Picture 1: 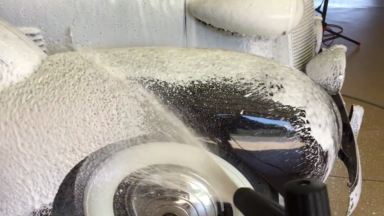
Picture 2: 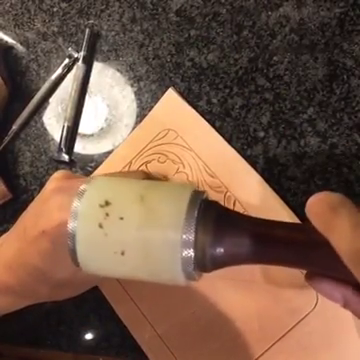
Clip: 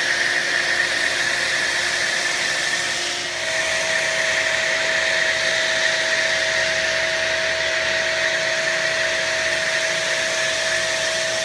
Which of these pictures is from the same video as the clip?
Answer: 1